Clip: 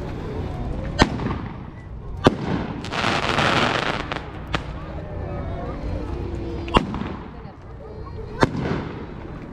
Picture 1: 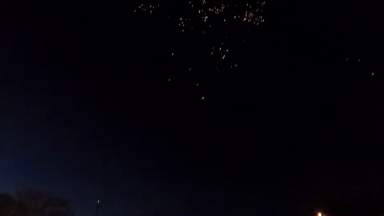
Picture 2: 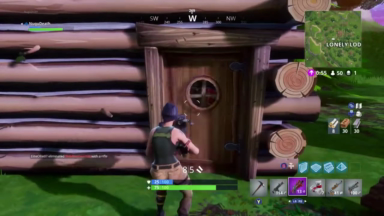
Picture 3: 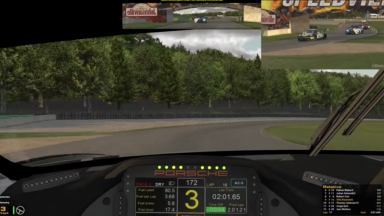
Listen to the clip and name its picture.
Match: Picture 1